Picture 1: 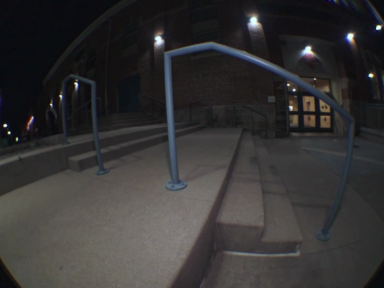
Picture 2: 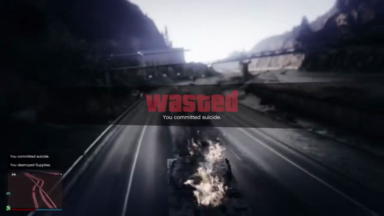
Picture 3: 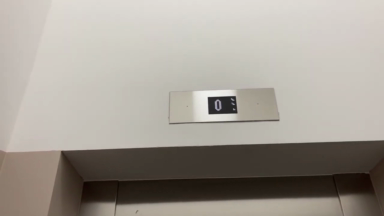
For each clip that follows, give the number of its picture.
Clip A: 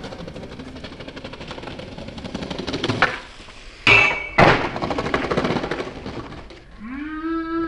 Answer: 1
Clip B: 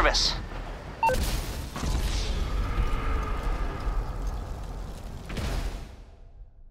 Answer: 2